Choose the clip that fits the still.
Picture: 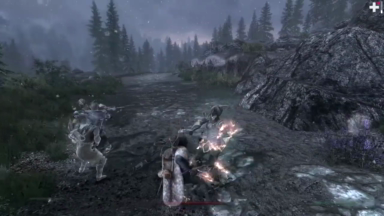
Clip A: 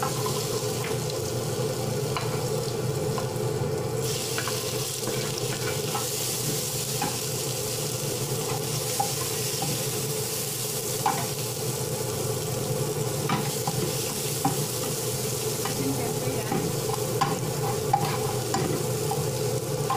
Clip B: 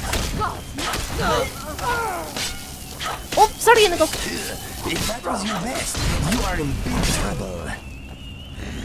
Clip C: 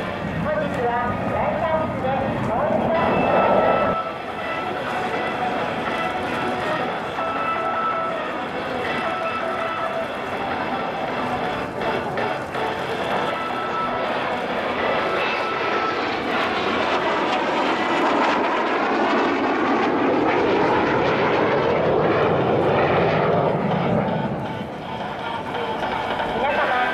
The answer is B